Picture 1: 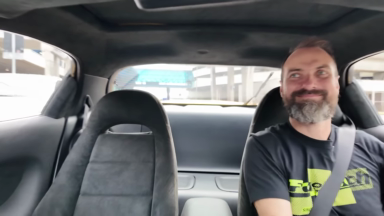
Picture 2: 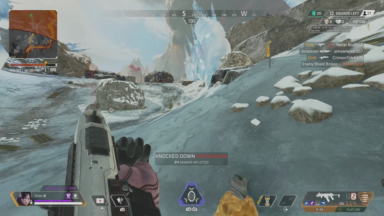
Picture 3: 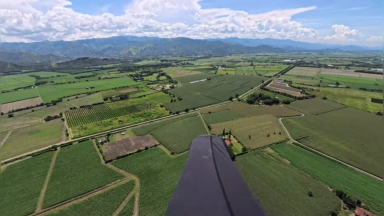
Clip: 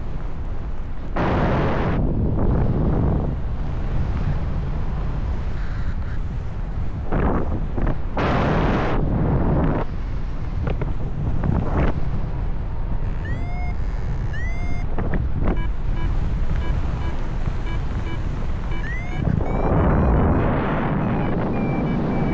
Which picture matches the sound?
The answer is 3